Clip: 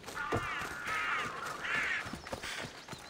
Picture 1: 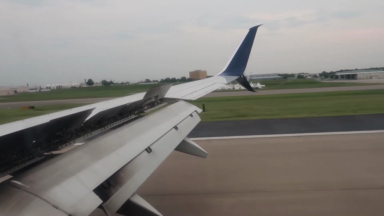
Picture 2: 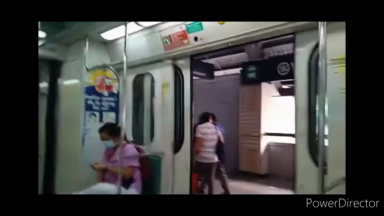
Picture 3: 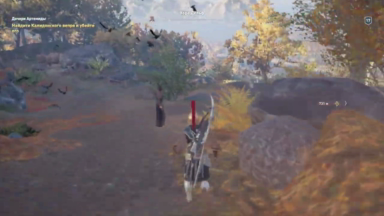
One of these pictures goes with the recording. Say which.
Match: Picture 3